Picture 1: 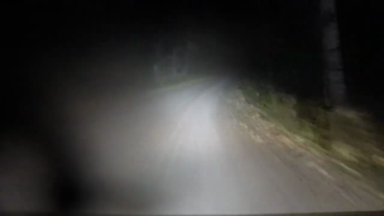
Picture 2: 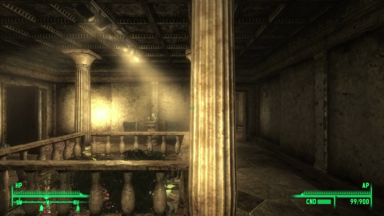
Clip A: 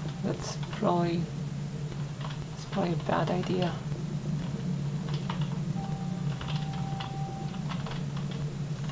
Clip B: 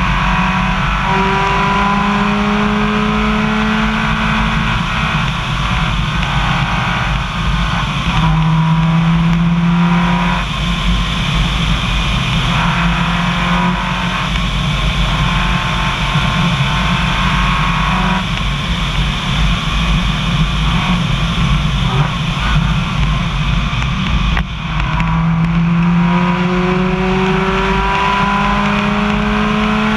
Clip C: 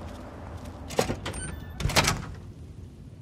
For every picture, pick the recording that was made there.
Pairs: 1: B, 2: C